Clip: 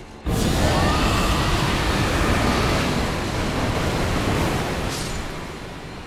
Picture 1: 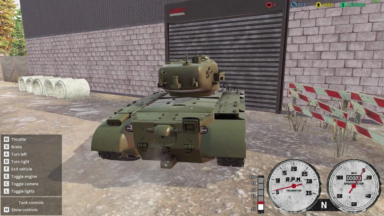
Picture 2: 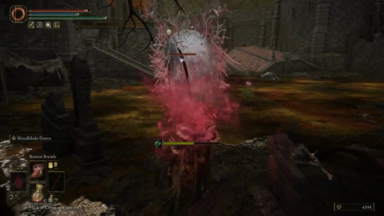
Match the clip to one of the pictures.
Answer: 2